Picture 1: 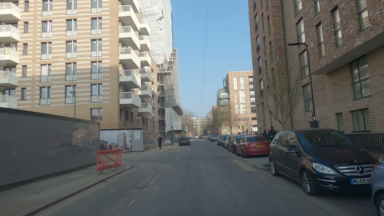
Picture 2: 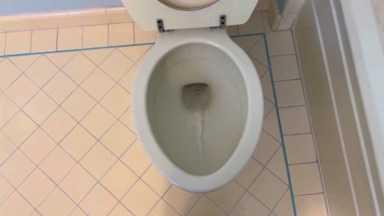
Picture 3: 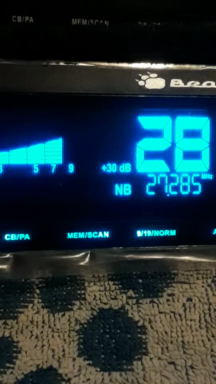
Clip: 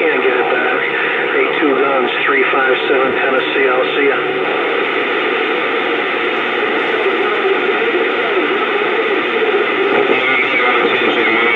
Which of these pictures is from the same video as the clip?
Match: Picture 3